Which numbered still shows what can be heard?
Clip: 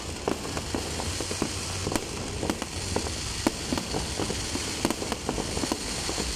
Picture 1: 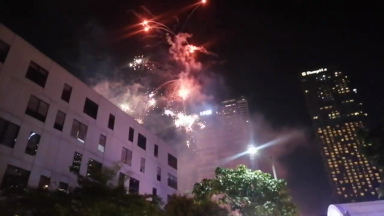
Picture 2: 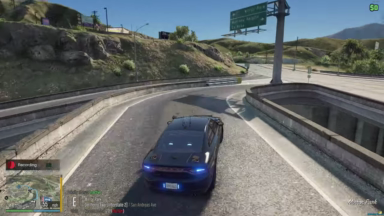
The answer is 1